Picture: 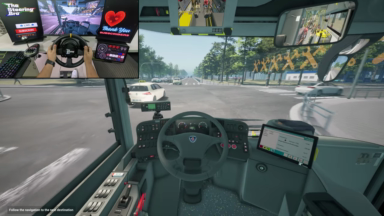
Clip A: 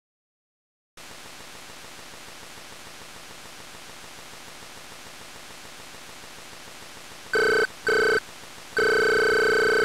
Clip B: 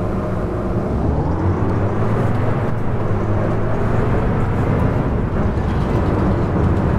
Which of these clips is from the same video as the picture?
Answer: B